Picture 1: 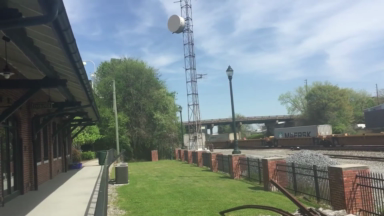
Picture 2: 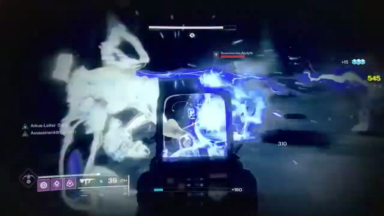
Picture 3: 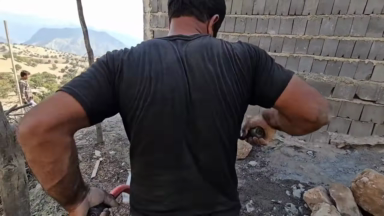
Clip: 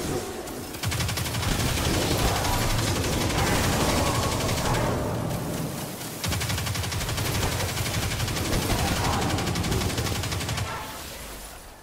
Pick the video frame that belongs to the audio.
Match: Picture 2